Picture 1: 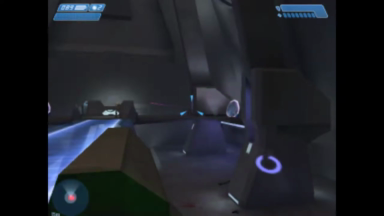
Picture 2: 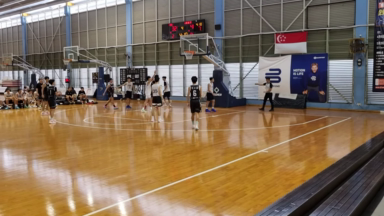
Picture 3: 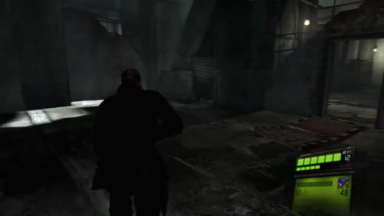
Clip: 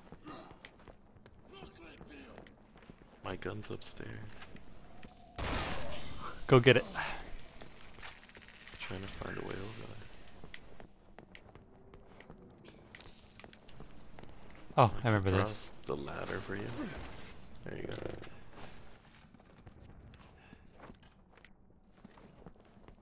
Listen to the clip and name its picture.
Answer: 3